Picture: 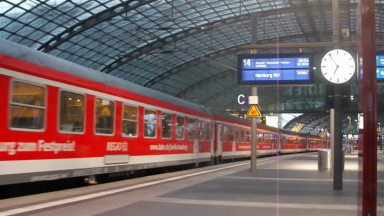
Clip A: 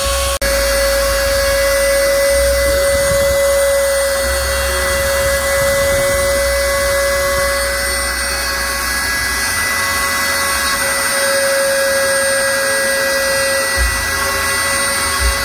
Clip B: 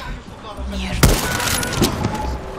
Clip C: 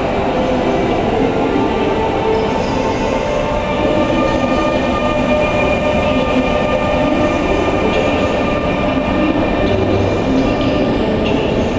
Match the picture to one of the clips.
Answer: C